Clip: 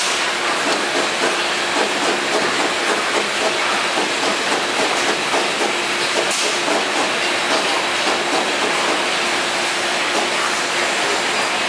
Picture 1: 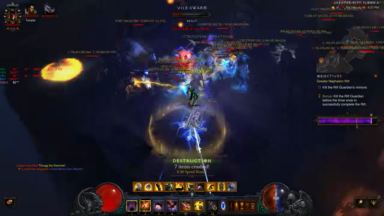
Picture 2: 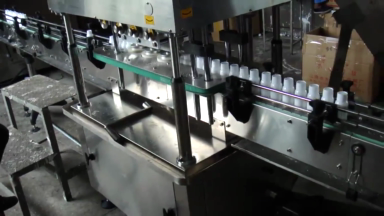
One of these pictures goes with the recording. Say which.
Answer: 2